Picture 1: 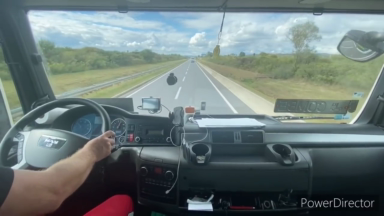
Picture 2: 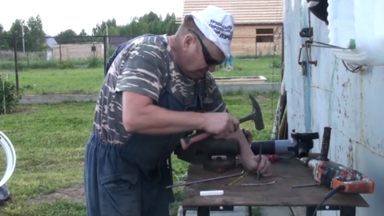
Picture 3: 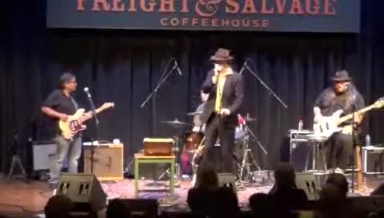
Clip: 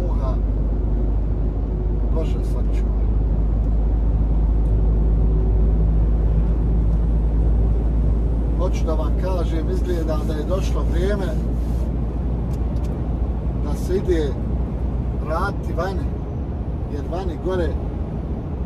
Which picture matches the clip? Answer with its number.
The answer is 1